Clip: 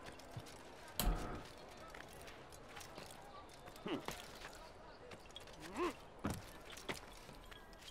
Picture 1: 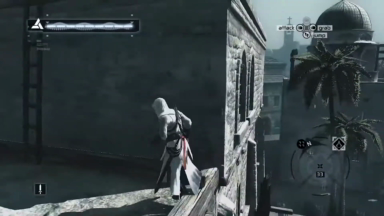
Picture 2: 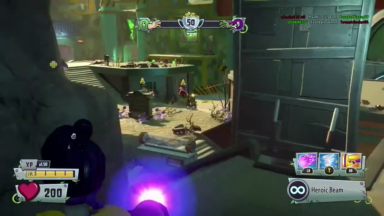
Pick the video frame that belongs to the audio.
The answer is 1